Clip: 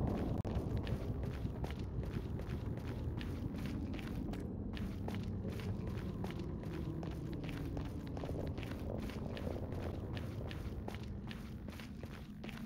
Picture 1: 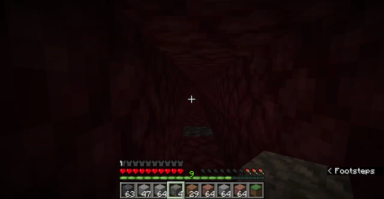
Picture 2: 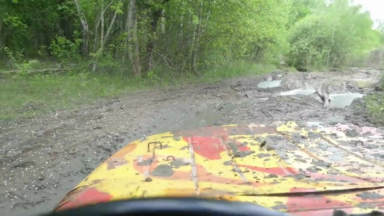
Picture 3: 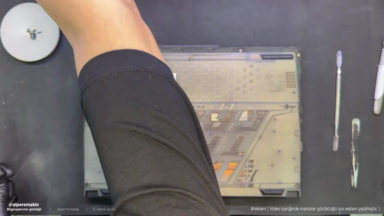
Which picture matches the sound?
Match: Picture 1